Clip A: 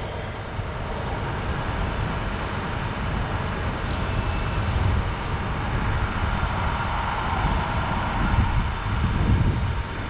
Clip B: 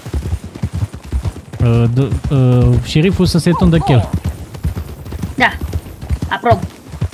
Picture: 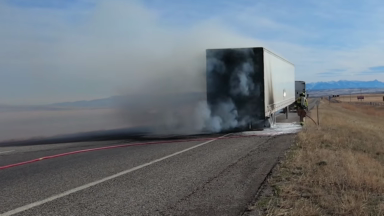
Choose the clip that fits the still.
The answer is A